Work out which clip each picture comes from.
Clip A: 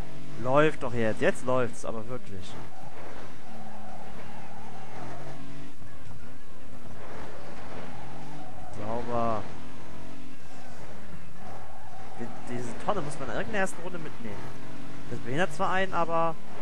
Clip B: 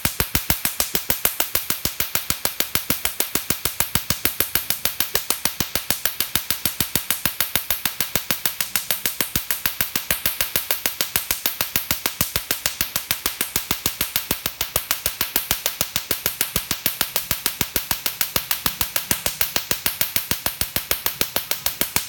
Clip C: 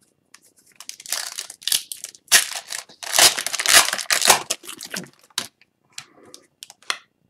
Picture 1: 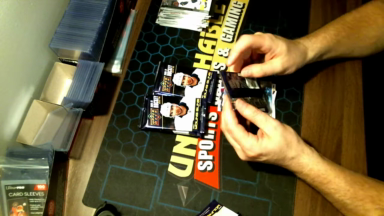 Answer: C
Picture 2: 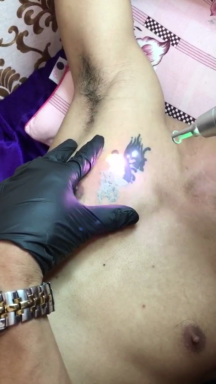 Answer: B